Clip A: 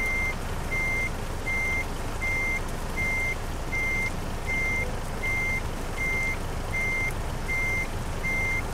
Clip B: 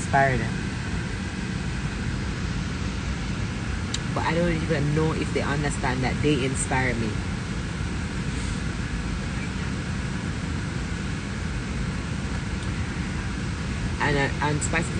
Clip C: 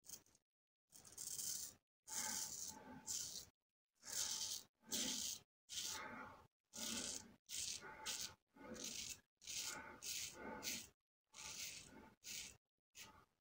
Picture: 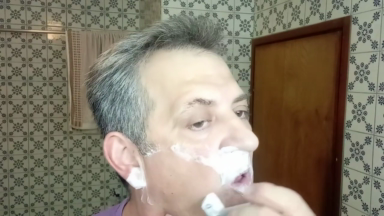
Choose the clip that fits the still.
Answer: C